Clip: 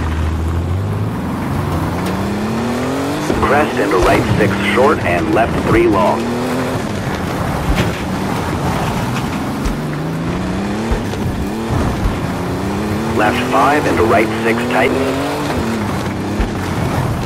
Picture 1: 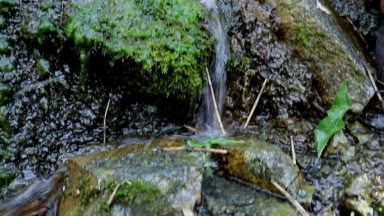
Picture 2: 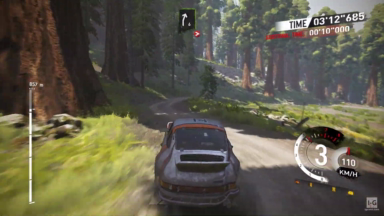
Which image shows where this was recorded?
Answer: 2